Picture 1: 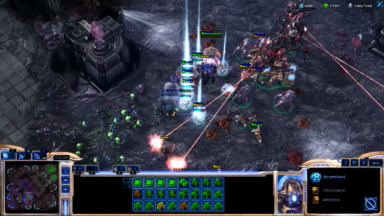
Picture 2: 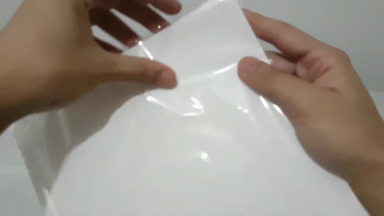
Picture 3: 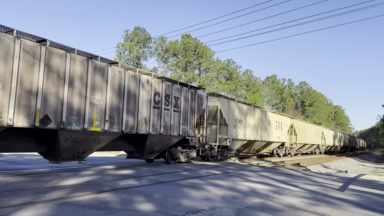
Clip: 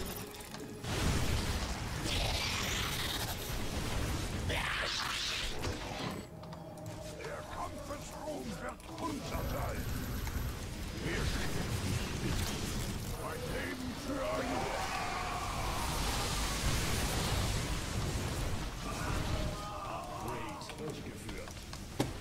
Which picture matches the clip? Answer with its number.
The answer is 1